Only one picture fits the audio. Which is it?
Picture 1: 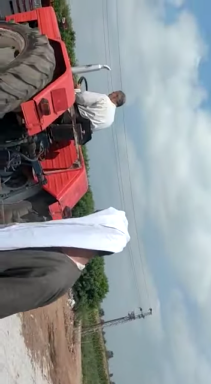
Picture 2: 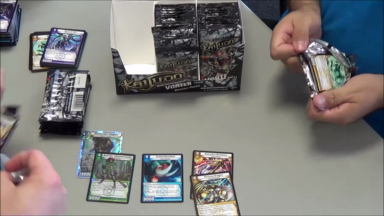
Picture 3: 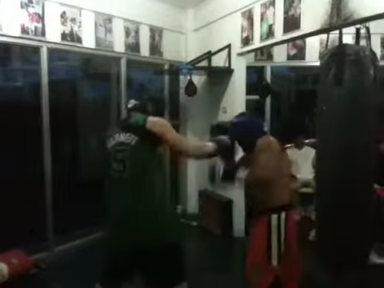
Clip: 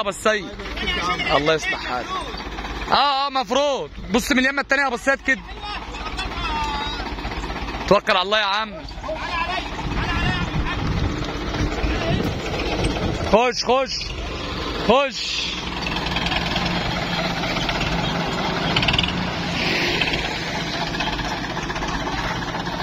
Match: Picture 1